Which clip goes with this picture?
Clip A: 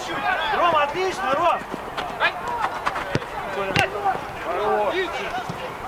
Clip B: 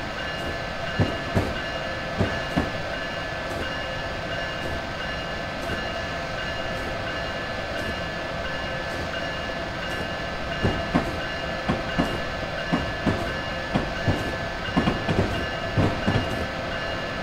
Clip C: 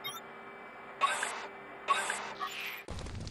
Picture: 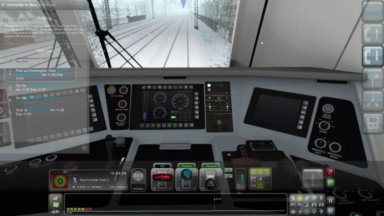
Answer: B